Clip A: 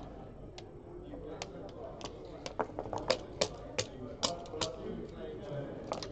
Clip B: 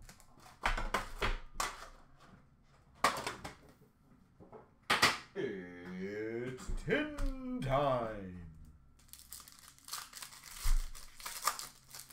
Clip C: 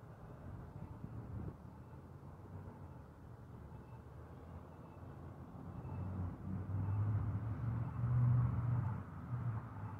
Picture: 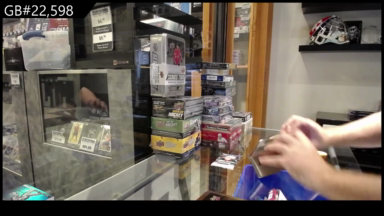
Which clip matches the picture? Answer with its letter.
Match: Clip B